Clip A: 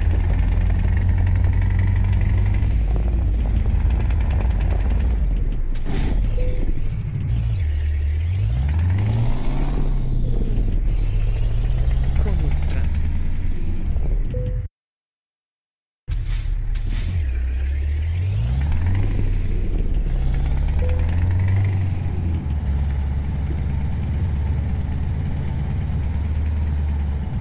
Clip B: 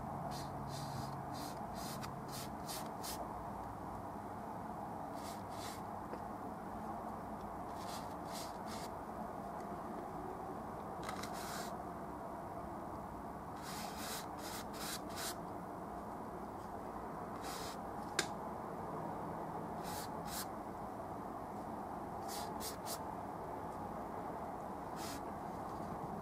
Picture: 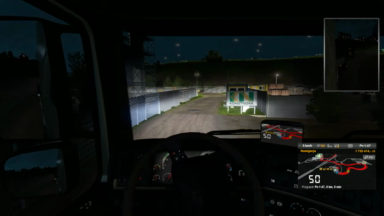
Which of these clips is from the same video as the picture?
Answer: A